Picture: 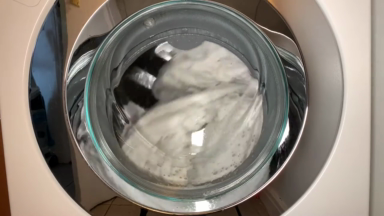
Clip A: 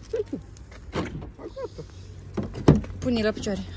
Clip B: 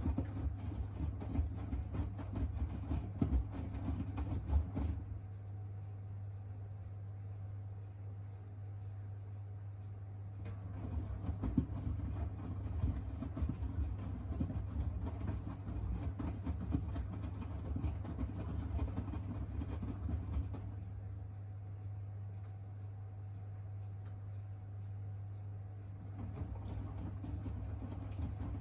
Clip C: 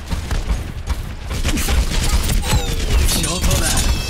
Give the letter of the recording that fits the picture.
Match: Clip B